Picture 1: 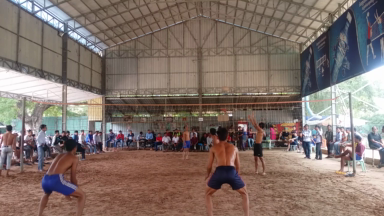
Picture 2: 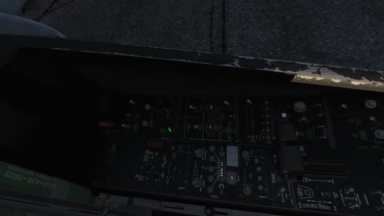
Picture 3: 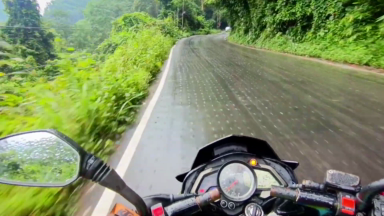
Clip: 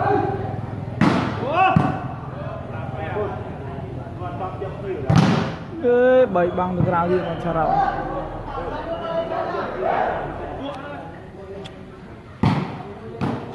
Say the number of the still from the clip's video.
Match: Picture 1